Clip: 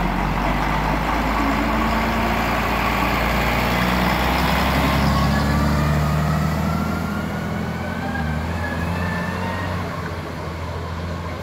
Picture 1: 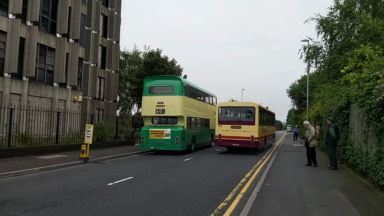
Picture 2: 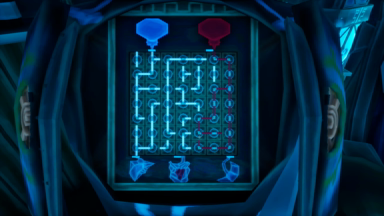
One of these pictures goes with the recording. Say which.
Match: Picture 1